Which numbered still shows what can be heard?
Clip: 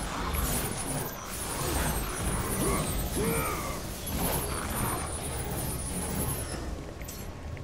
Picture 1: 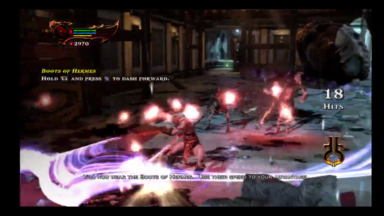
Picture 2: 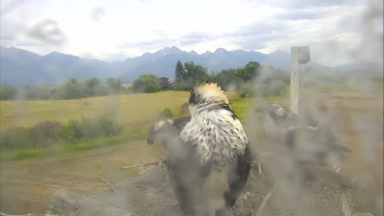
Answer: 1